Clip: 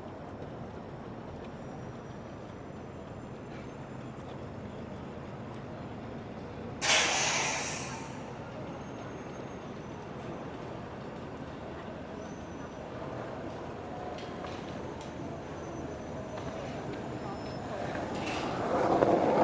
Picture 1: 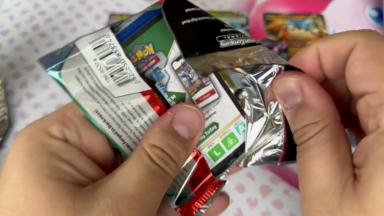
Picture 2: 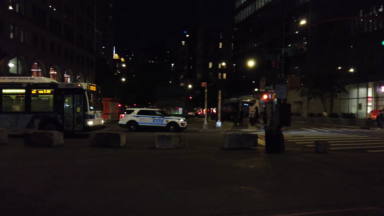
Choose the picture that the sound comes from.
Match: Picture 2